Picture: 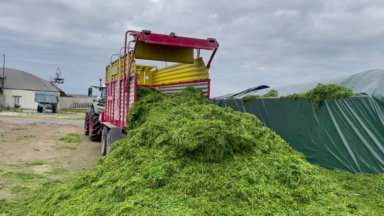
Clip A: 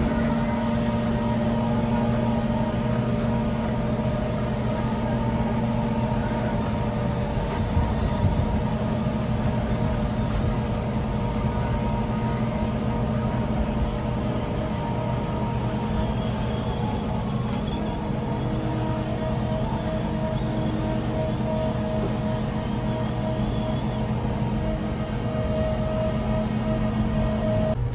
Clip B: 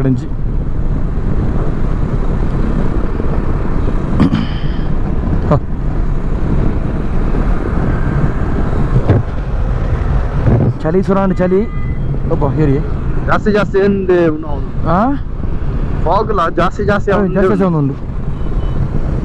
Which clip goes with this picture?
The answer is A